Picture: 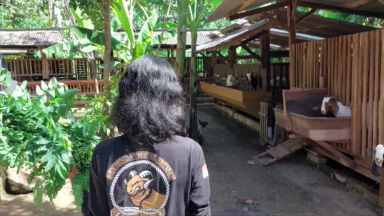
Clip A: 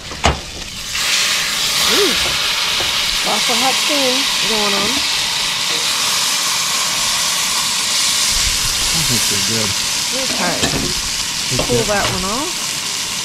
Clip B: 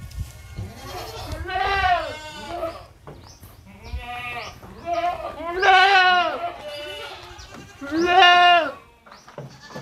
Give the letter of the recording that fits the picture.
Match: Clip B